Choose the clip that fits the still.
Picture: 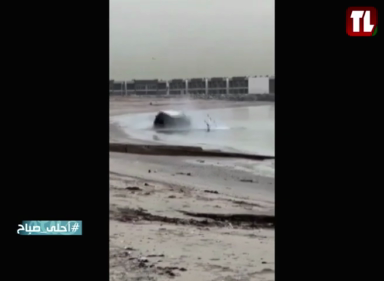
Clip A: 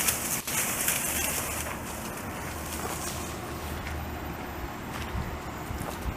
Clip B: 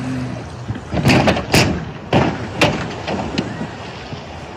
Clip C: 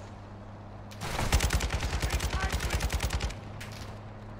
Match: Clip B